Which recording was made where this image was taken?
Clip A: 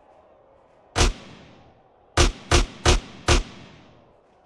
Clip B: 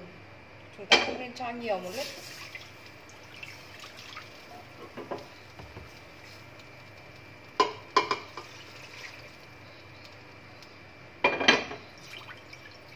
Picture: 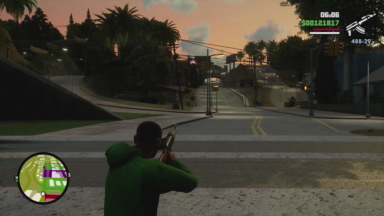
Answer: A